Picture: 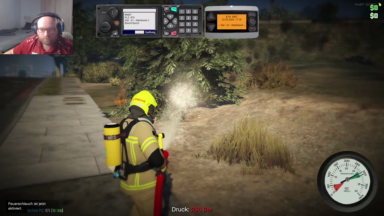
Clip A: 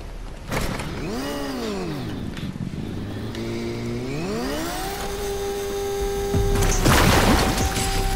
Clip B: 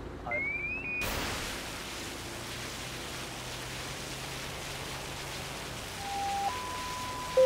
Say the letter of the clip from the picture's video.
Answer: B